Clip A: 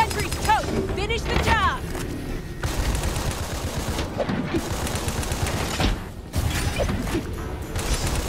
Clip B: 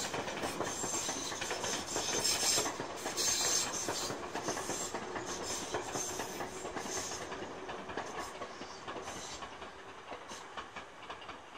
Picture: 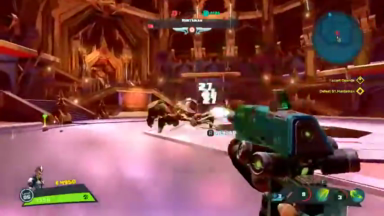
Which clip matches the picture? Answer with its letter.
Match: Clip A